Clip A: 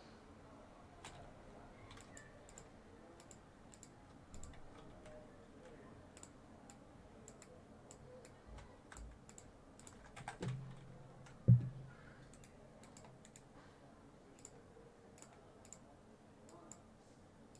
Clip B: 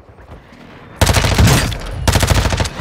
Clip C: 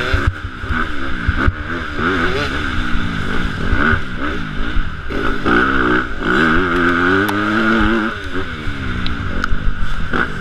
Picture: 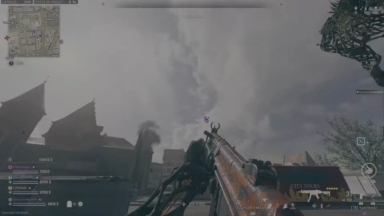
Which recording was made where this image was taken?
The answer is B